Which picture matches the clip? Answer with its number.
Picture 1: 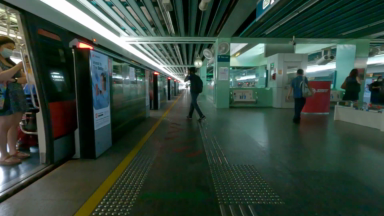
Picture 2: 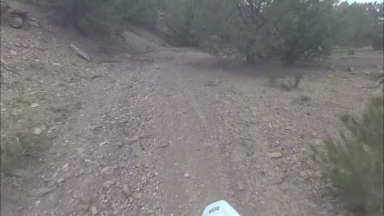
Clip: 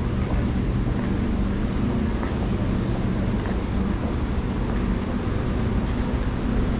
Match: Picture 1